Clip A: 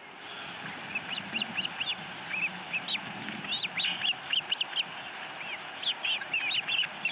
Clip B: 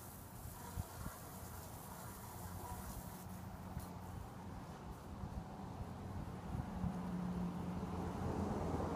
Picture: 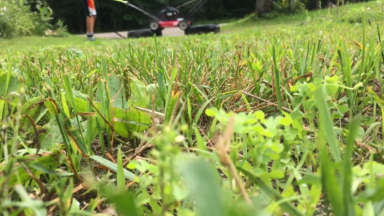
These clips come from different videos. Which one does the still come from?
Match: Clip B